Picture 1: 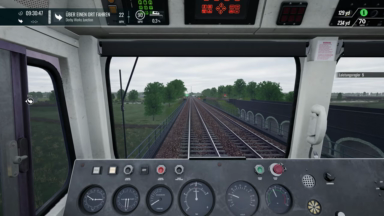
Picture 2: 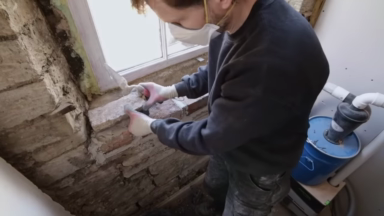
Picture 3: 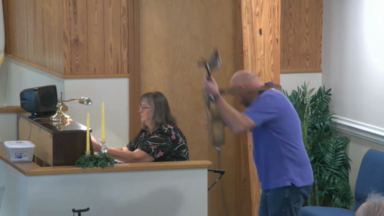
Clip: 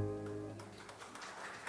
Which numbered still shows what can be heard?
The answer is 3